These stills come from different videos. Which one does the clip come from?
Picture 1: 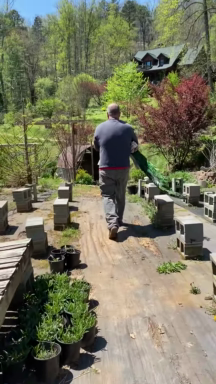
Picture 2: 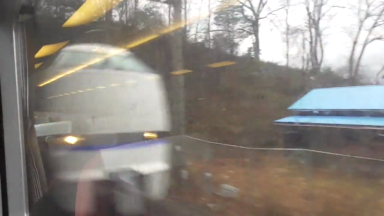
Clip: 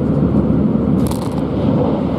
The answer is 2